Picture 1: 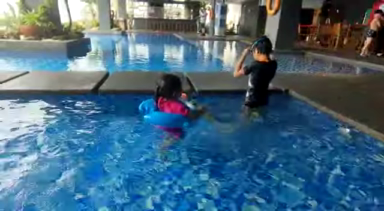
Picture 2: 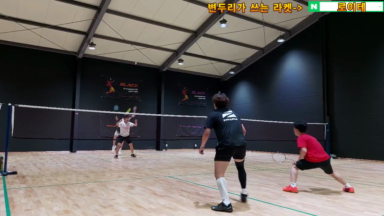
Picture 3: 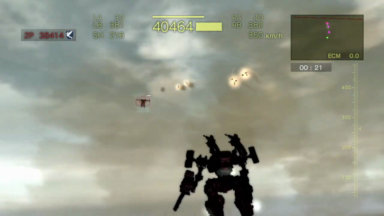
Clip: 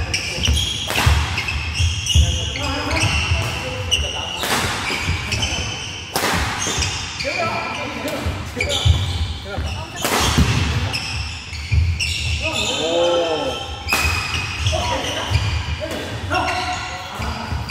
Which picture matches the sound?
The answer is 2